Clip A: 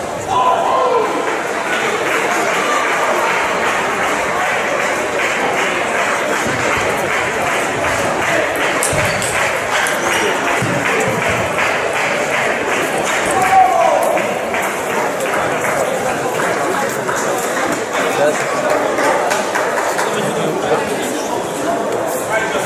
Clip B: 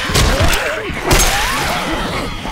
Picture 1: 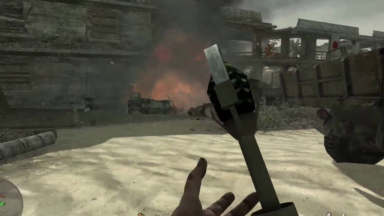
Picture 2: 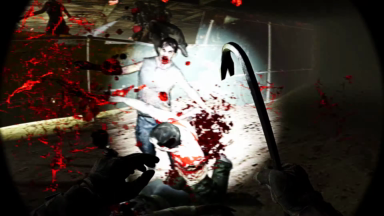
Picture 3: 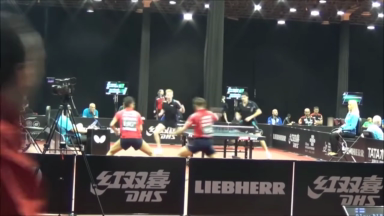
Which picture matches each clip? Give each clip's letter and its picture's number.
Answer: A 3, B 2